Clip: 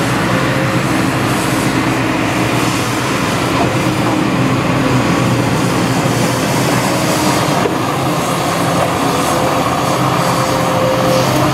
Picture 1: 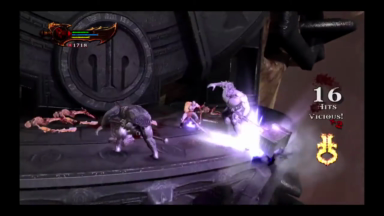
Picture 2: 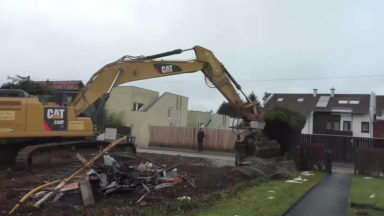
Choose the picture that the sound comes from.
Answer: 2